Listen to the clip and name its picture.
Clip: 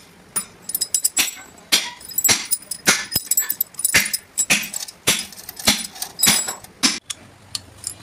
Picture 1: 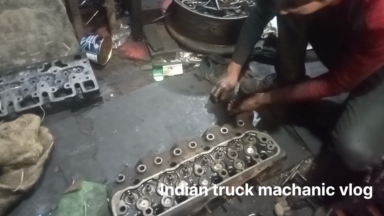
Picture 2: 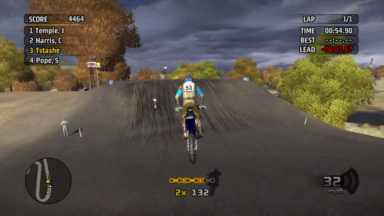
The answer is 1